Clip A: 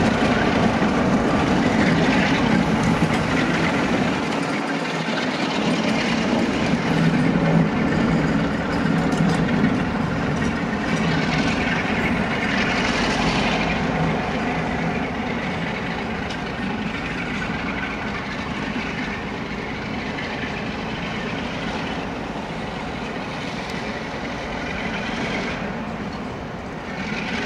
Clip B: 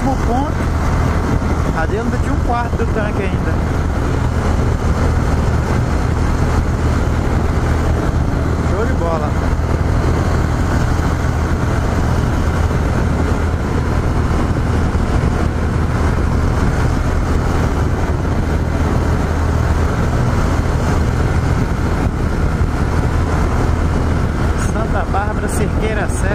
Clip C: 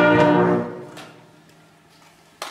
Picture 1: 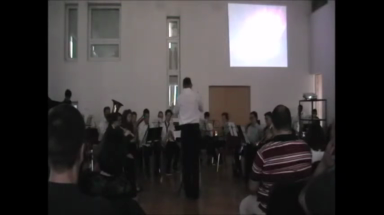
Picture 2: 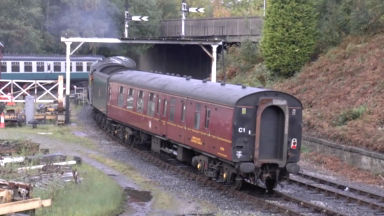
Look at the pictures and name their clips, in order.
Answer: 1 C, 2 A